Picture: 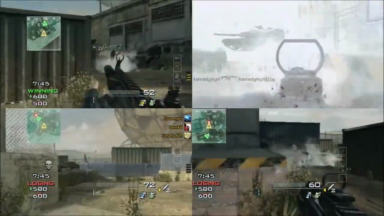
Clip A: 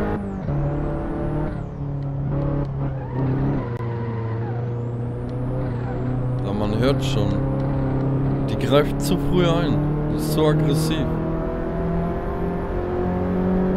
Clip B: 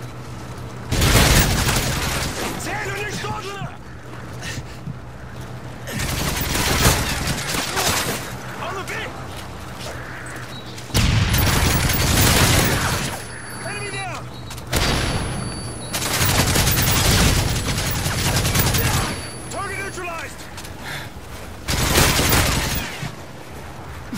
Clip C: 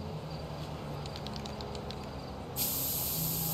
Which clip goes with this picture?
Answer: B